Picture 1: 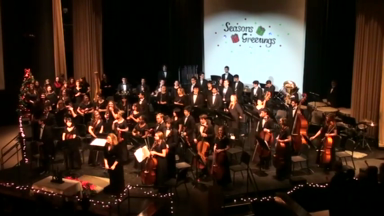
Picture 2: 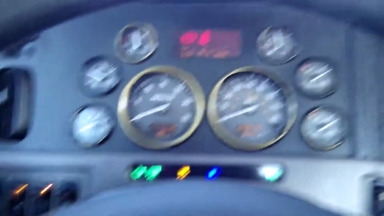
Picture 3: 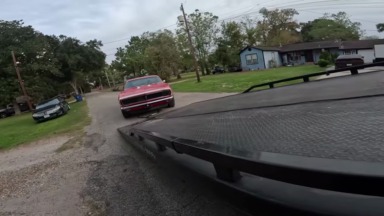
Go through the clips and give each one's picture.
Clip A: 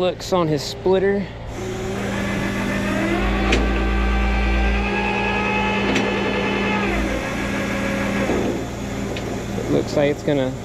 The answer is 3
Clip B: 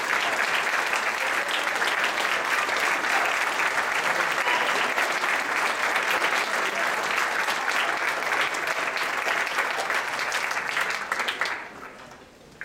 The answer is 1